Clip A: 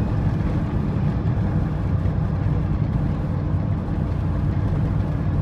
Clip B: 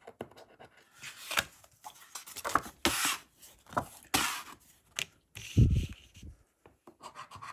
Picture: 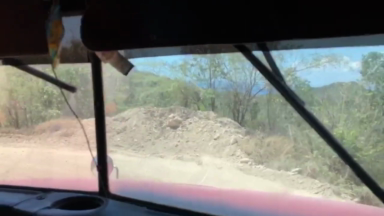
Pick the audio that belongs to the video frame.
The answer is A